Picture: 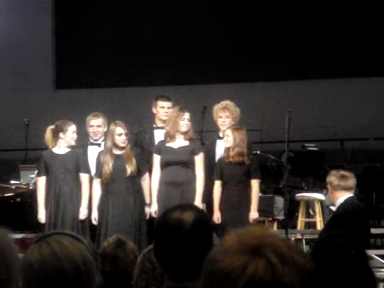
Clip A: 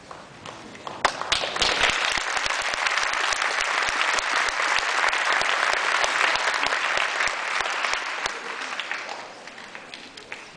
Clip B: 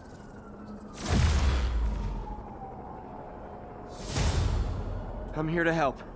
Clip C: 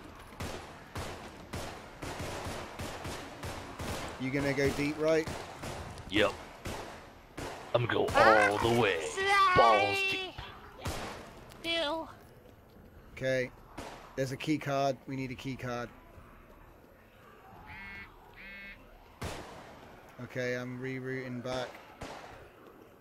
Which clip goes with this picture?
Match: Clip A